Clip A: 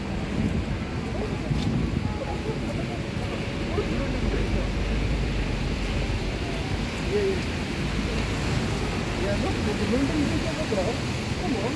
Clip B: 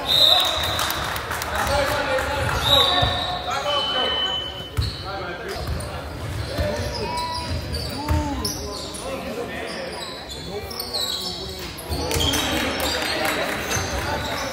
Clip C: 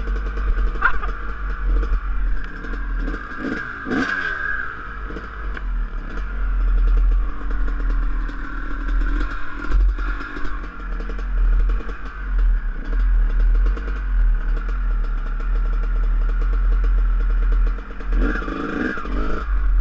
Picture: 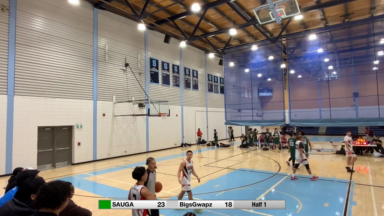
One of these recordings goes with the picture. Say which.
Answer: B